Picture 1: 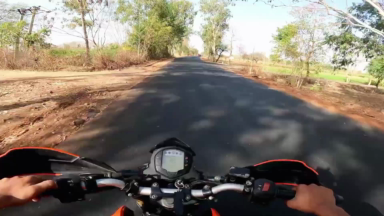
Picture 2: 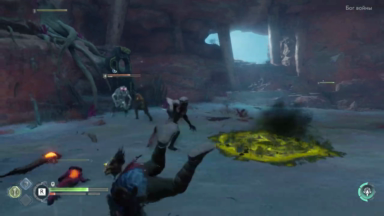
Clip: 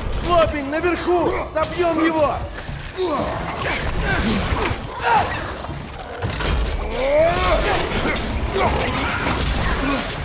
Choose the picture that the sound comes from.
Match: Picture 2